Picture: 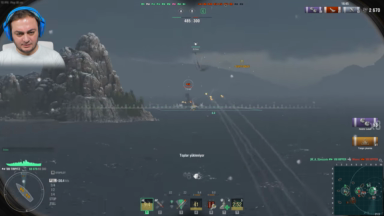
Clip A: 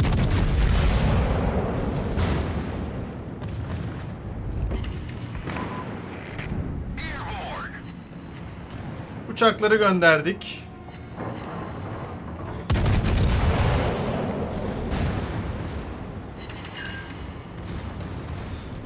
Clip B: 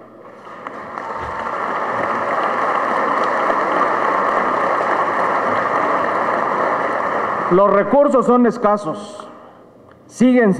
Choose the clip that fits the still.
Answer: A